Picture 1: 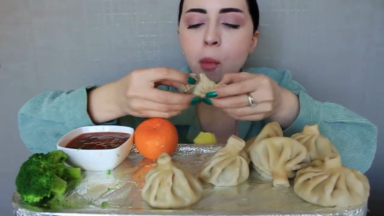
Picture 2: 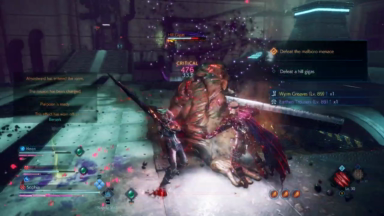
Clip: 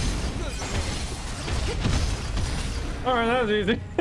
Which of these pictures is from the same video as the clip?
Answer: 2